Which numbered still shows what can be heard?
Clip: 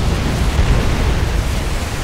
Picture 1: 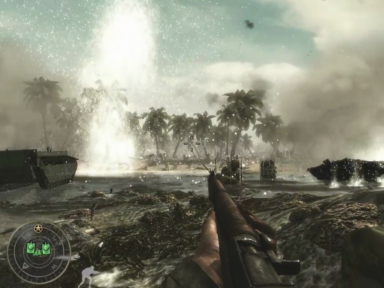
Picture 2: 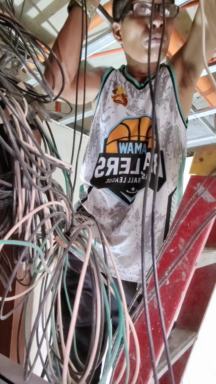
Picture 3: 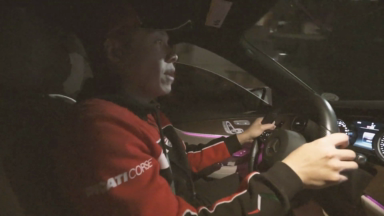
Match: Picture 1